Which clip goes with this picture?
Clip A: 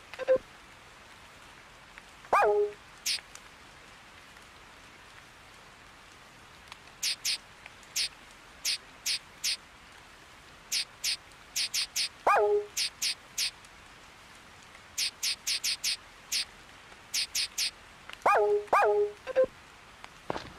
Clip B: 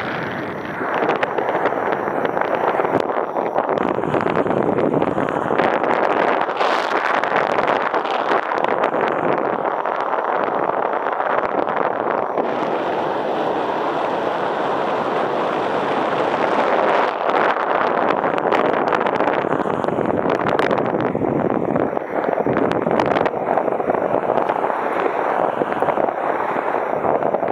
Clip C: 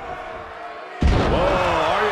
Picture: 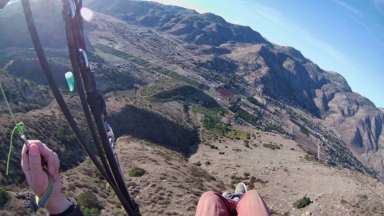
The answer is B